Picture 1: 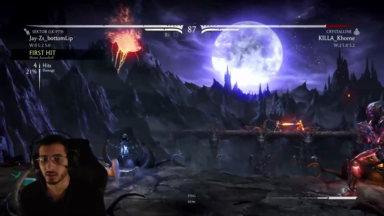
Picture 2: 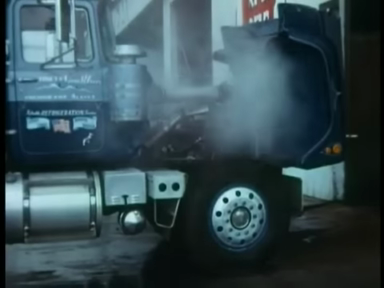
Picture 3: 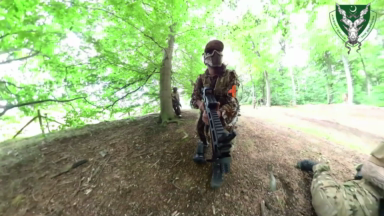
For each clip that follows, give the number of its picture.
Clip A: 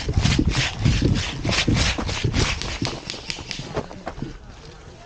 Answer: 3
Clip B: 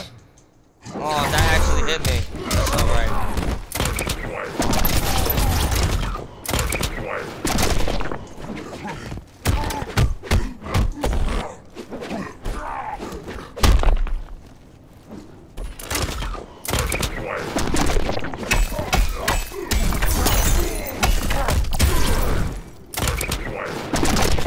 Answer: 1